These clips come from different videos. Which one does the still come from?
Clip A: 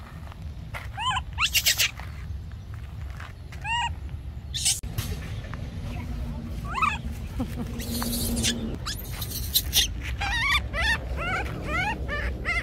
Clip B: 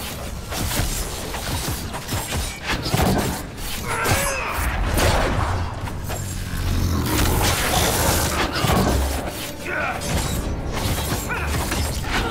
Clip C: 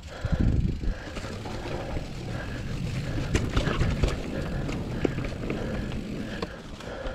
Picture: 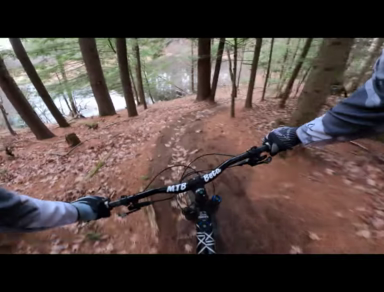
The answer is C